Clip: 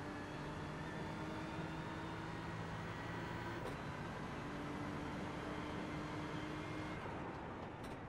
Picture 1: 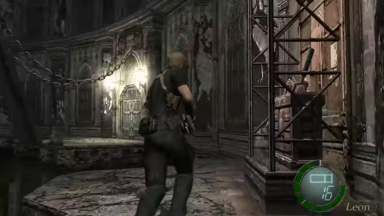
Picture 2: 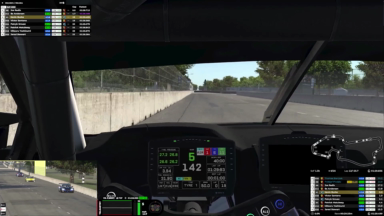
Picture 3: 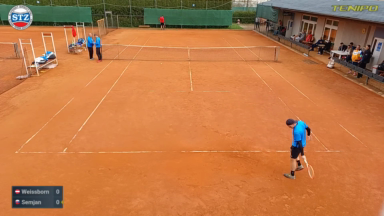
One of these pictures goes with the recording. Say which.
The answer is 2